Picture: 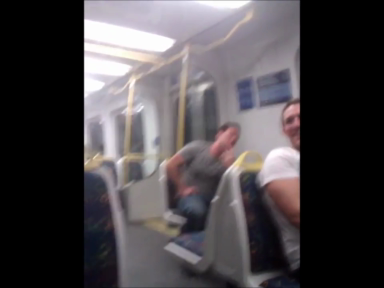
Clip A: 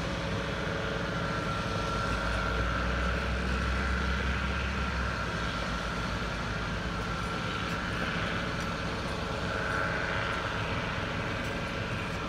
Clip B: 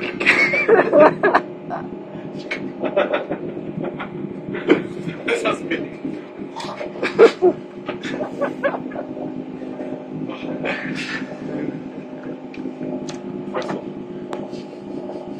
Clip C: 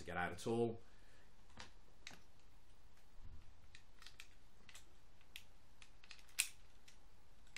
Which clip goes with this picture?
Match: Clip B